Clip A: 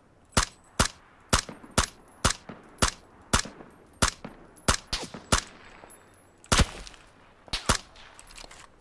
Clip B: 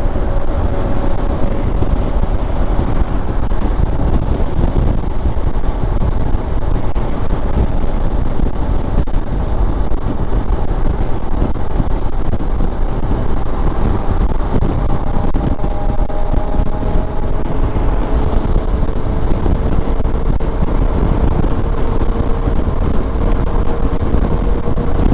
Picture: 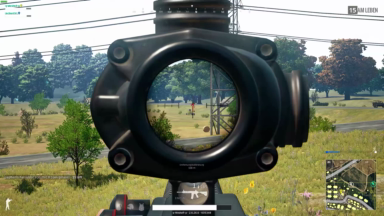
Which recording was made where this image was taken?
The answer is A